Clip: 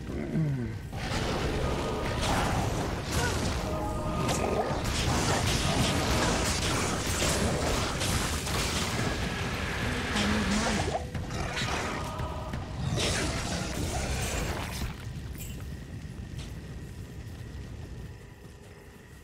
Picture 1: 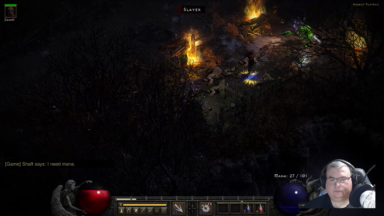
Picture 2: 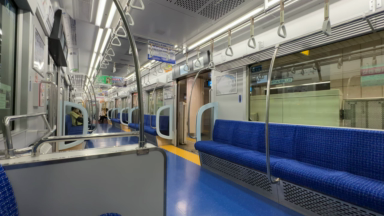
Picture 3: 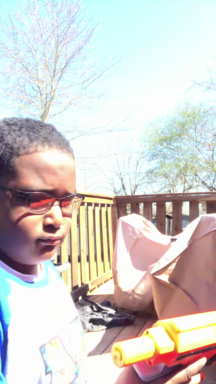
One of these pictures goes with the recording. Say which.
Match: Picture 1